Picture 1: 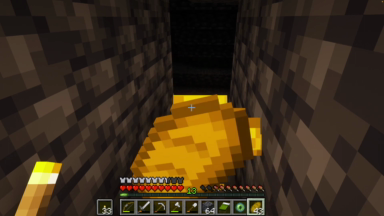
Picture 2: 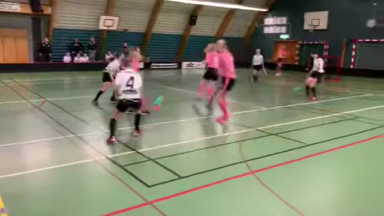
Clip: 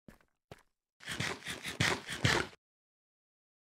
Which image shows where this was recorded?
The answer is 1